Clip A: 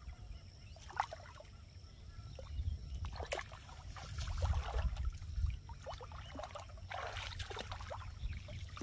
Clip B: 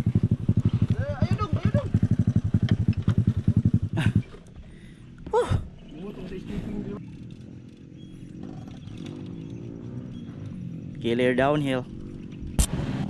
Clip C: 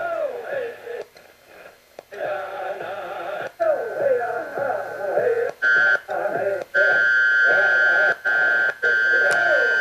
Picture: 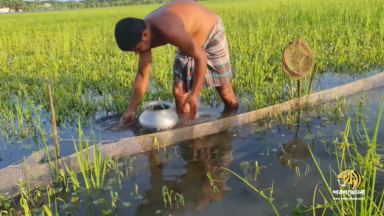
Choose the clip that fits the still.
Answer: A